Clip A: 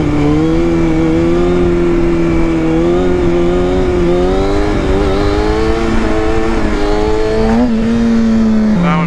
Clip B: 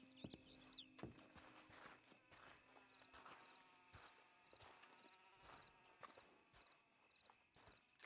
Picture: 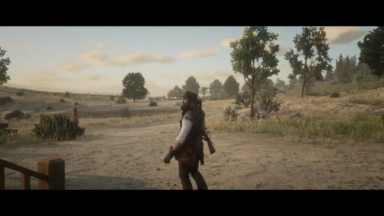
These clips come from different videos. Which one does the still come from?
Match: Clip B